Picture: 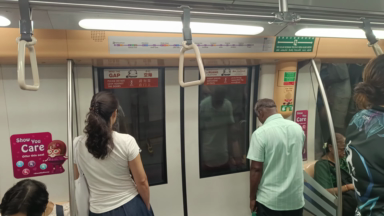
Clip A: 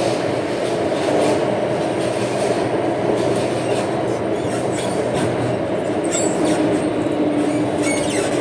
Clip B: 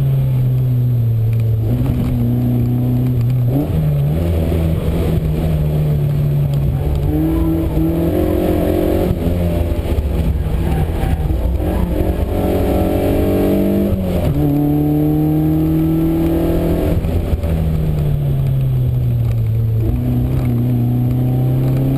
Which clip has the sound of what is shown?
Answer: A